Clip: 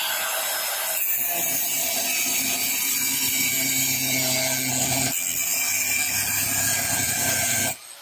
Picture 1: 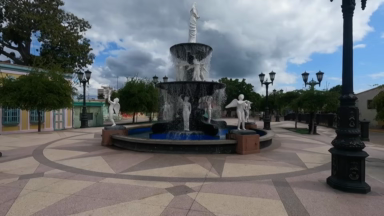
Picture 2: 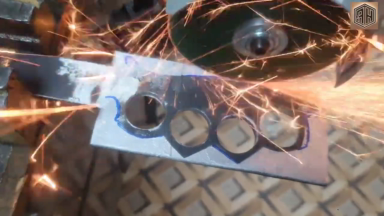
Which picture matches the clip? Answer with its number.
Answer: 2